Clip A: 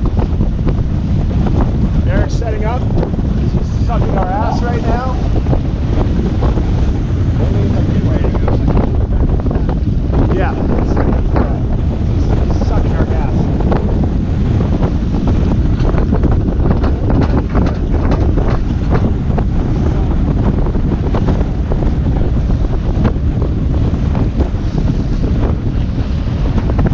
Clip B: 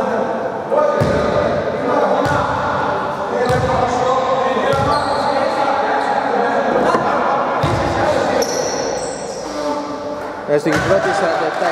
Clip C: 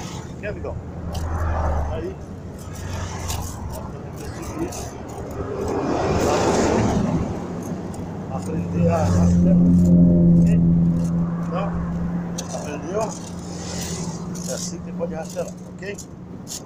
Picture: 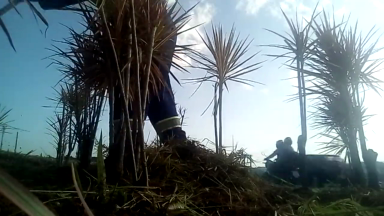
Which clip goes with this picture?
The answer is C